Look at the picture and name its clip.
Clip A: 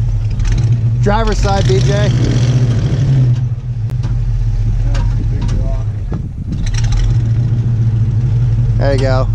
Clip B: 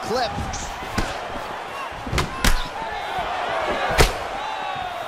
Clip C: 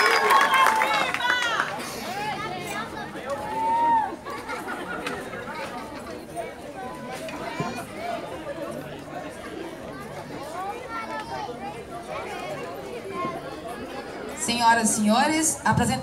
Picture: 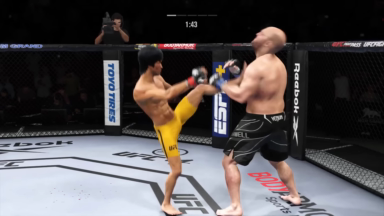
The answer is B